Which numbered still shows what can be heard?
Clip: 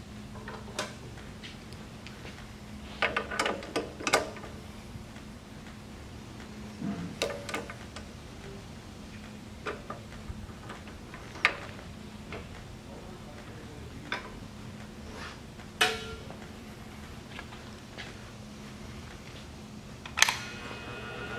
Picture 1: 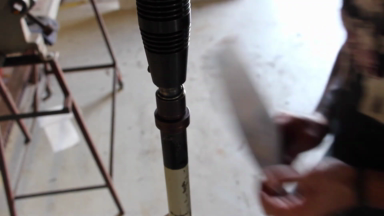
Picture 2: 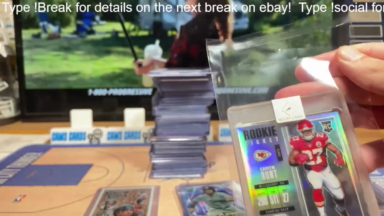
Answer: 1